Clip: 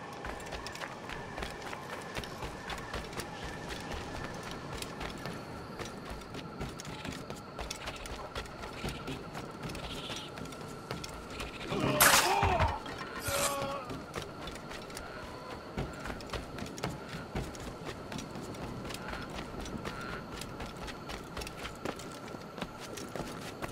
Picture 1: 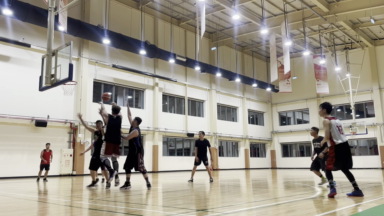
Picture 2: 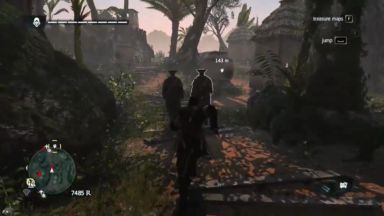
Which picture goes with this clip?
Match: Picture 2